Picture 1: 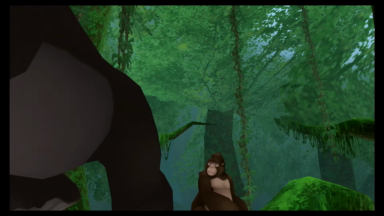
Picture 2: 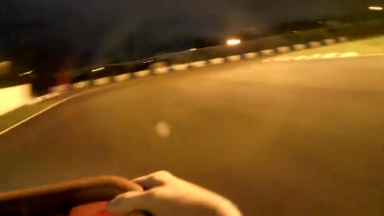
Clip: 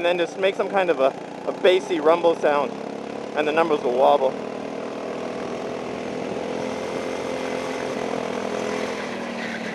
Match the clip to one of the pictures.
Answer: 2